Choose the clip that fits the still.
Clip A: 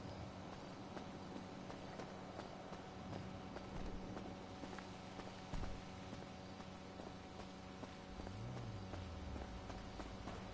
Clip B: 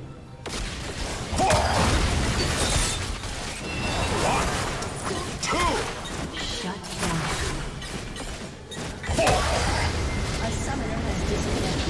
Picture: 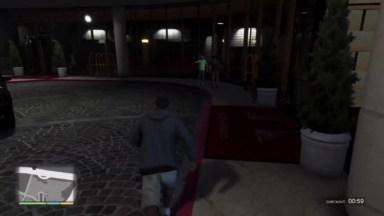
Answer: A